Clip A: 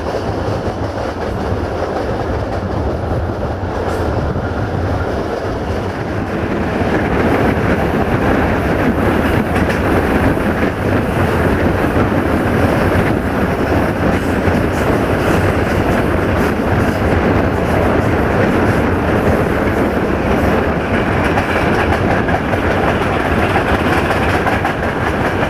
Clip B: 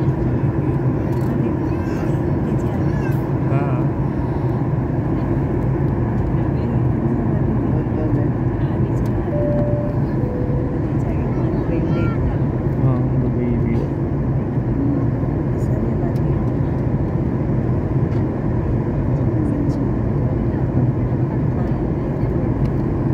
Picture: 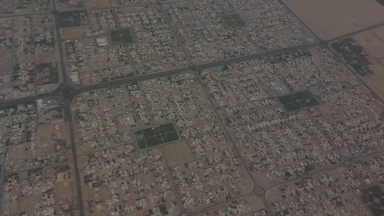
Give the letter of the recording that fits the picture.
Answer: B